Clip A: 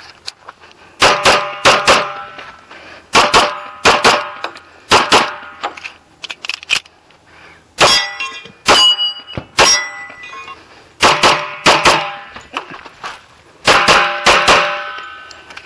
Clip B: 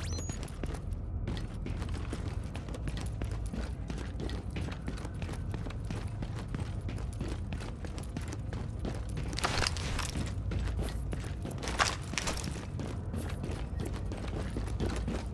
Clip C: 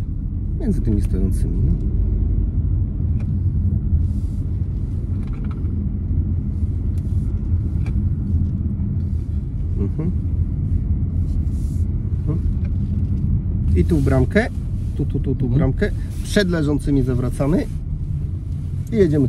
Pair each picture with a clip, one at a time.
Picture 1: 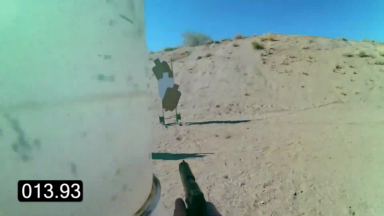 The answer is A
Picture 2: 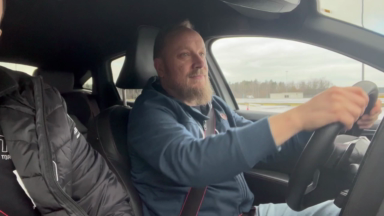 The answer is C